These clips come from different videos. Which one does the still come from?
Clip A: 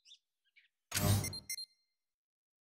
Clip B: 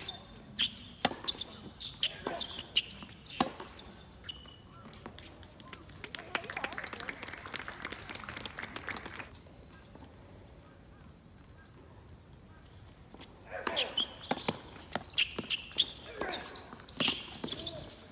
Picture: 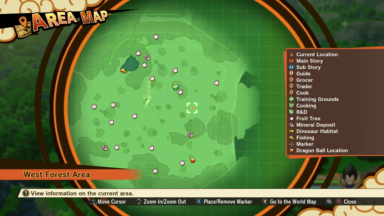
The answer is A